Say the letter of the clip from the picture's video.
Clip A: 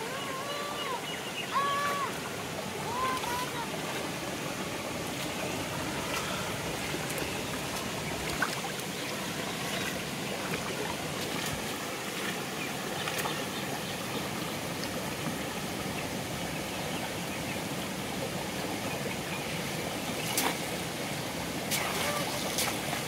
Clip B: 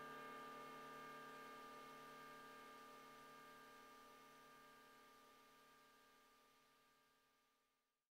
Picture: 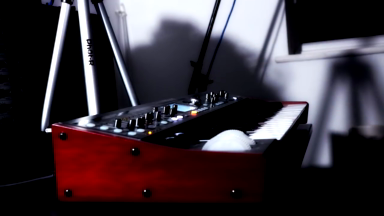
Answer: B